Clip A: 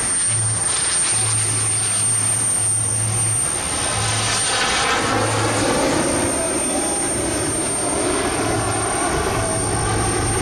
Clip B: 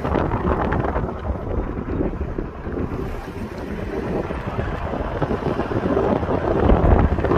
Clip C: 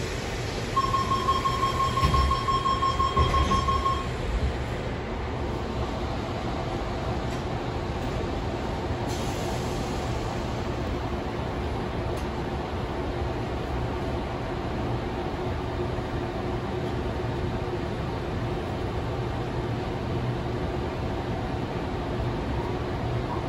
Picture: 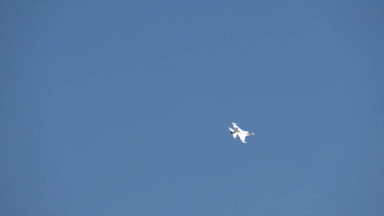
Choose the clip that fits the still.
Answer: A